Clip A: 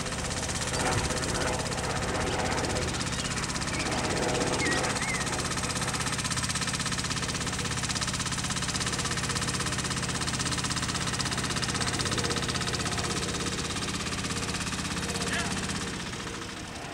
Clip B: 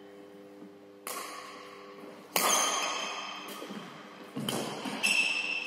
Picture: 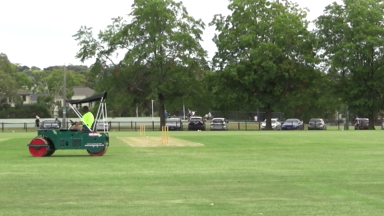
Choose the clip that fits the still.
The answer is A